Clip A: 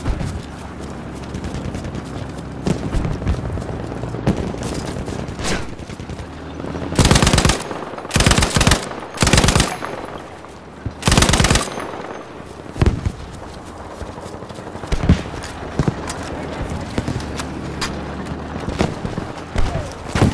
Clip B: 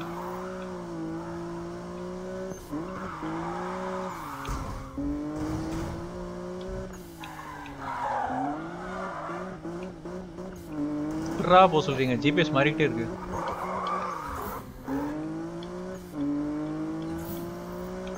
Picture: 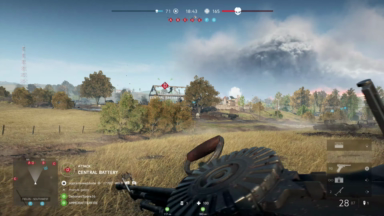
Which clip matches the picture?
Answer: A